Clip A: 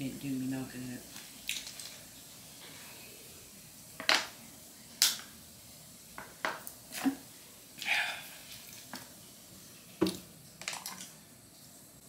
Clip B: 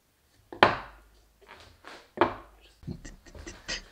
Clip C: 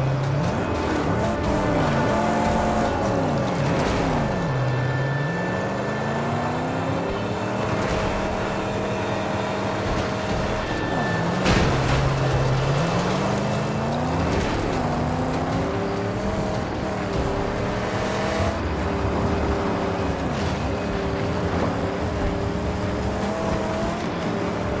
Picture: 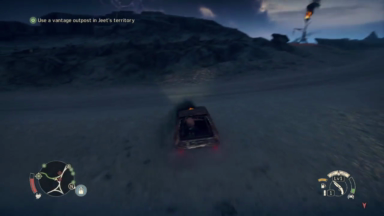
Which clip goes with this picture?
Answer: C